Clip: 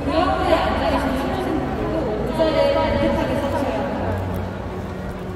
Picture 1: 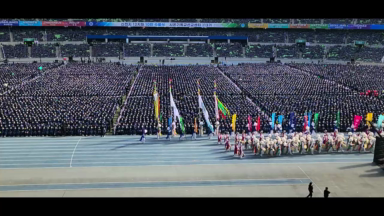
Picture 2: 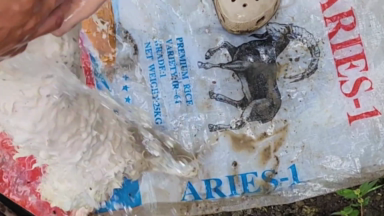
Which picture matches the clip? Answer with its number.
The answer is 1